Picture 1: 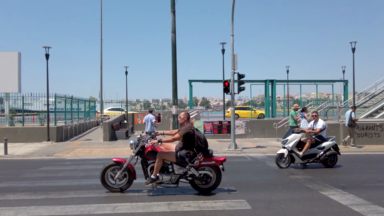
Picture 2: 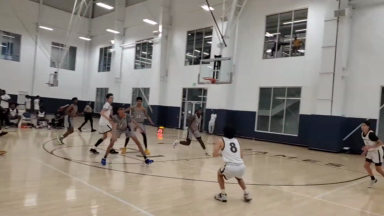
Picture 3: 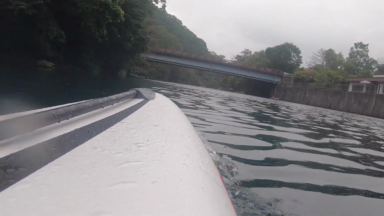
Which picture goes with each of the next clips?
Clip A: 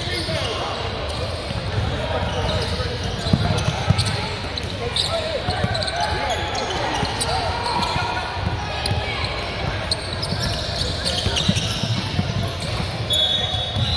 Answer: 2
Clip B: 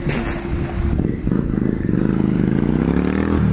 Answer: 1